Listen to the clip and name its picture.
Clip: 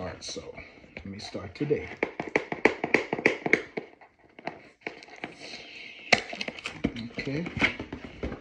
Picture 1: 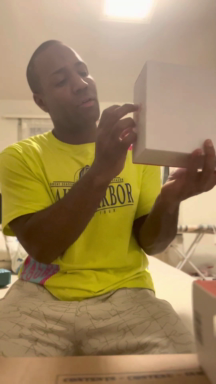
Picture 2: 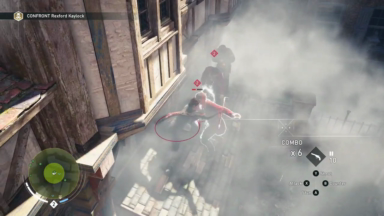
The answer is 1